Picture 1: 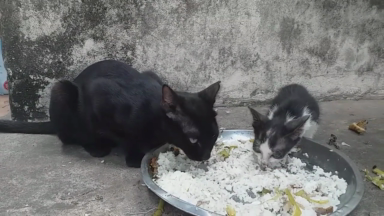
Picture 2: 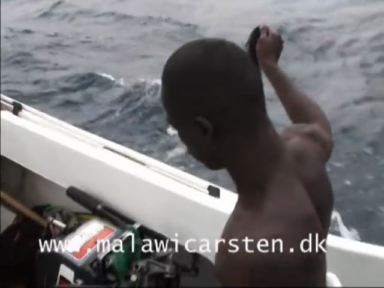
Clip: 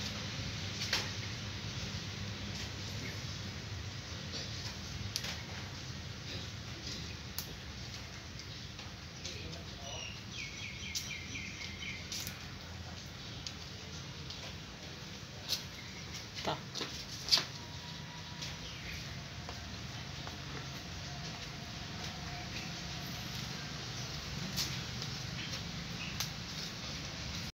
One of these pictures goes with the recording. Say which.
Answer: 1